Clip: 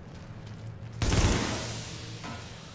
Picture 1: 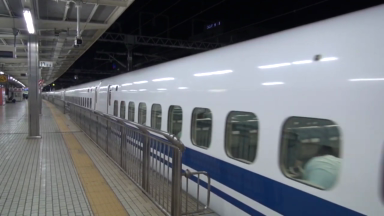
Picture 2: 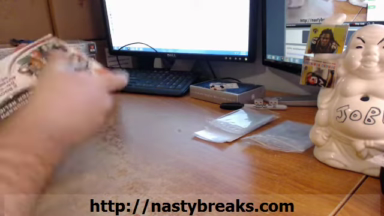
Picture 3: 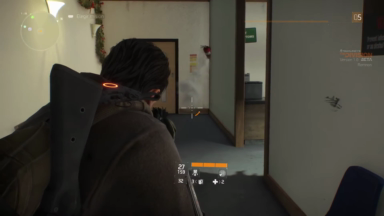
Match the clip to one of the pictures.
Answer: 3